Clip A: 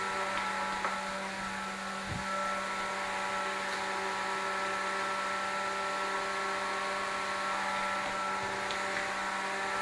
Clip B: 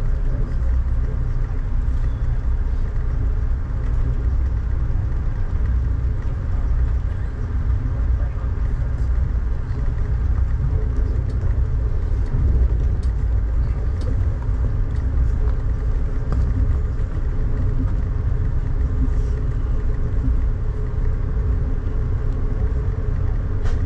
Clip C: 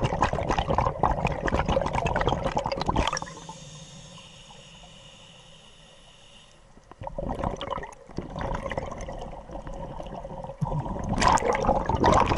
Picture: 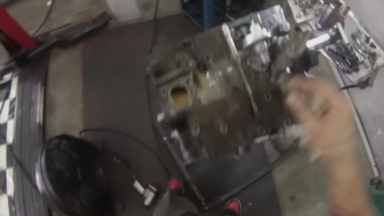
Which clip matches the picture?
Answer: A